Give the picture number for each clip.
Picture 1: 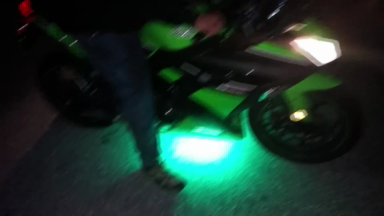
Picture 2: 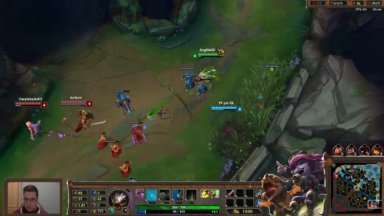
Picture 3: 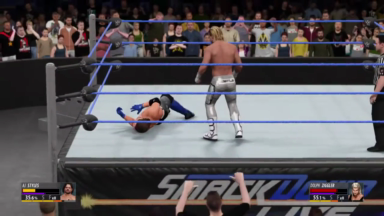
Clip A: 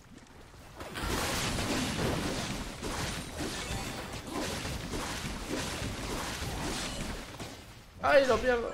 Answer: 2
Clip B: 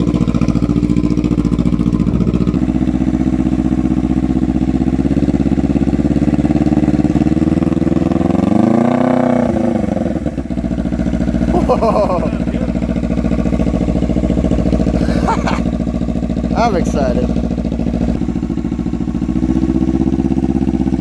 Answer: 1